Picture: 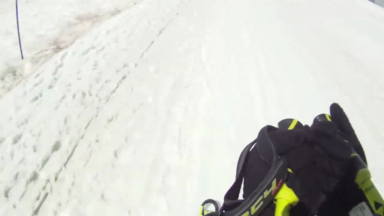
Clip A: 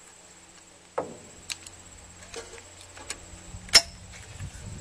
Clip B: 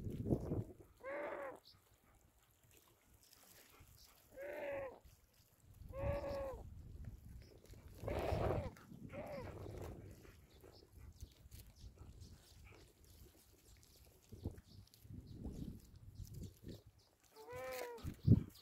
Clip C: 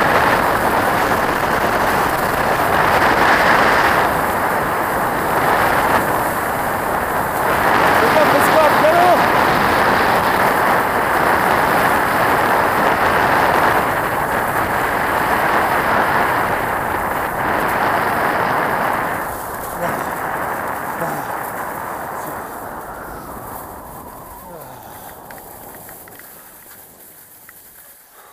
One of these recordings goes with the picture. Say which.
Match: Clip C